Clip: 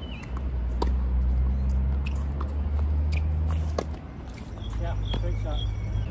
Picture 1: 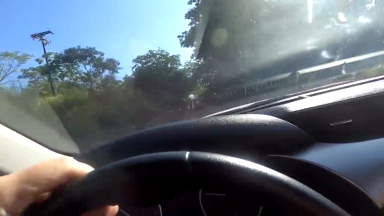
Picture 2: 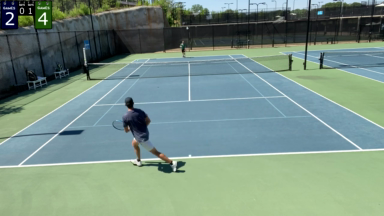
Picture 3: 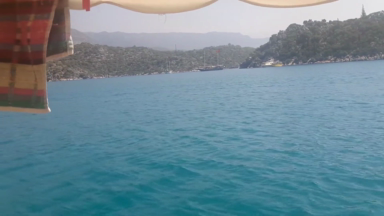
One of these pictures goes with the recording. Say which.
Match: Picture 2